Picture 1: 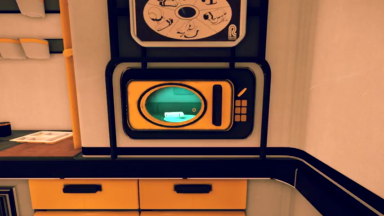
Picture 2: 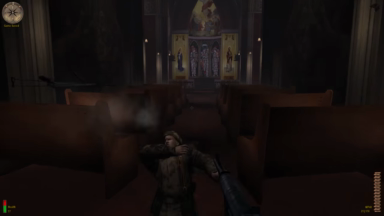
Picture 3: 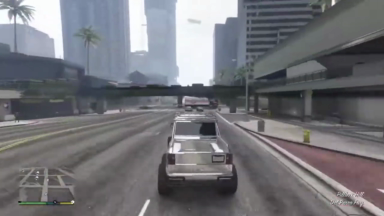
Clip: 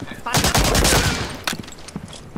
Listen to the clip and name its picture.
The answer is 2